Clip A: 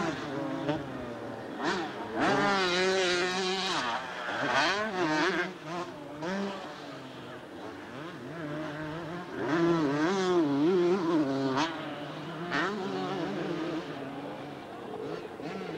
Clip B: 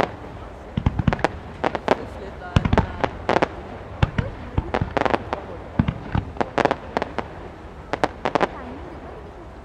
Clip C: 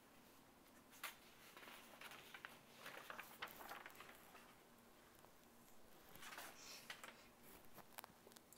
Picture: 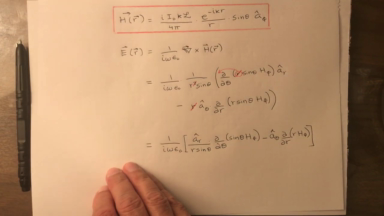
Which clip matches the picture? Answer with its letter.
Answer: C